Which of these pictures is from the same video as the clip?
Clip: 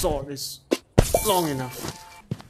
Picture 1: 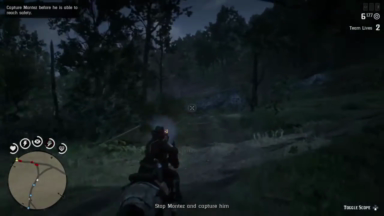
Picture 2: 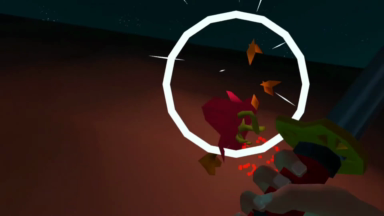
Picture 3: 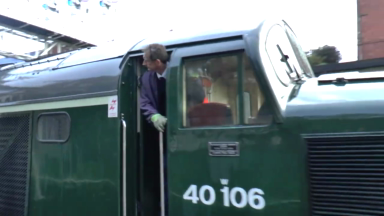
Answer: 2